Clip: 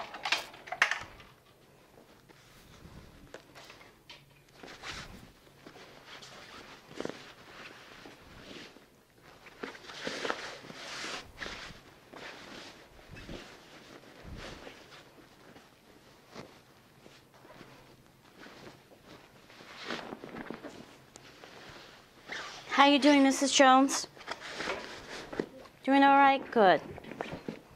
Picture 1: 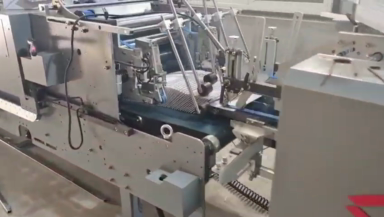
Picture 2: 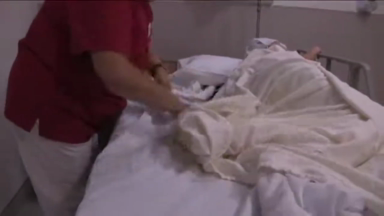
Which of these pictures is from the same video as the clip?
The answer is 2